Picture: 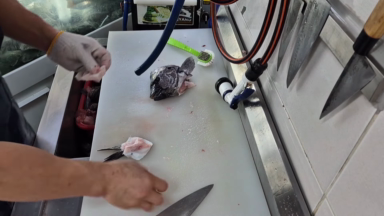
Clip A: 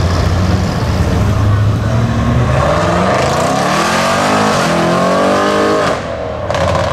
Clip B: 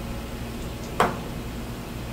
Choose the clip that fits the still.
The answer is B